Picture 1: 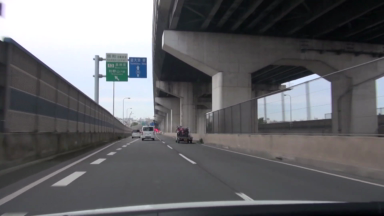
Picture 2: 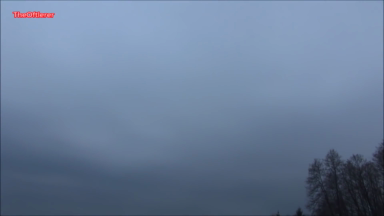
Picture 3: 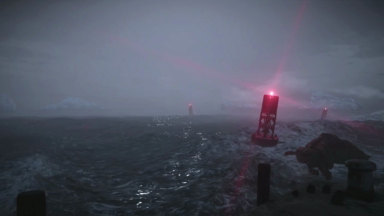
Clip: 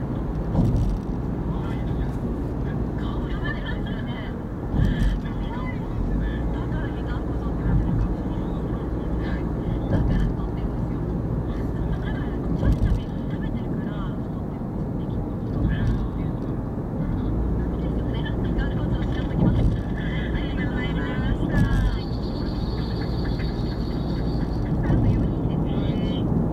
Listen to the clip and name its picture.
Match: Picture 1